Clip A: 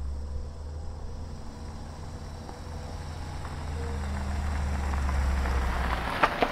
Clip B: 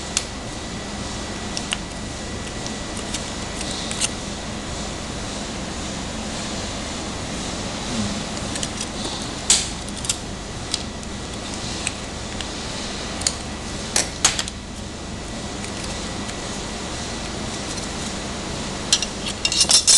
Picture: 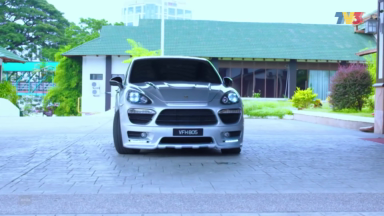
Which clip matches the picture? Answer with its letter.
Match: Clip A